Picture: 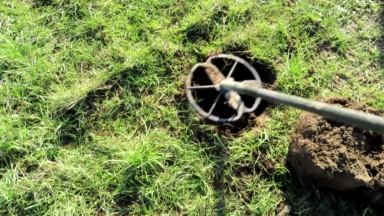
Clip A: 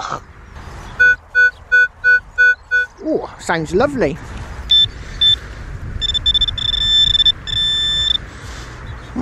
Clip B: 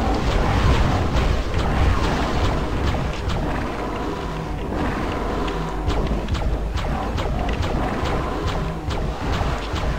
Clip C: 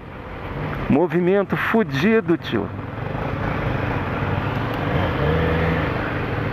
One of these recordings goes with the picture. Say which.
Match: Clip A